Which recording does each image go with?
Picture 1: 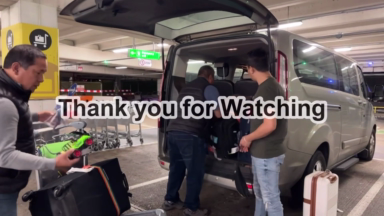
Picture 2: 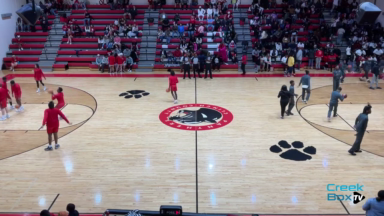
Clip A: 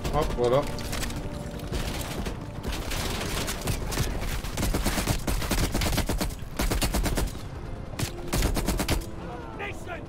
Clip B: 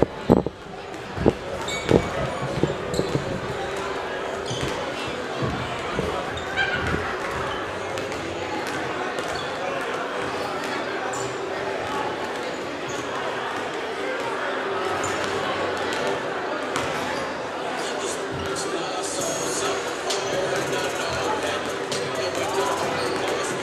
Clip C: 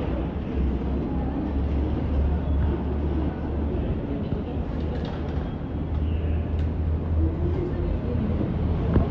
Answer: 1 C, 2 B